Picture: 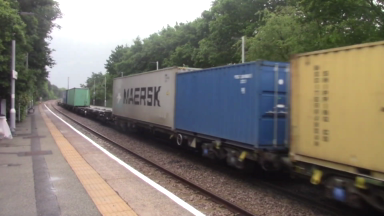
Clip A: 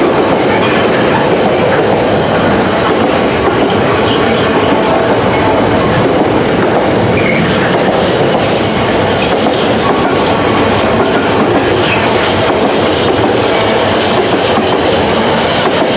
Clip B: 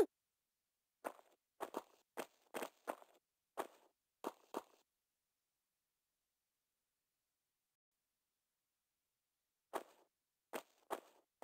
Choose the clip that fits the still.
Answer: A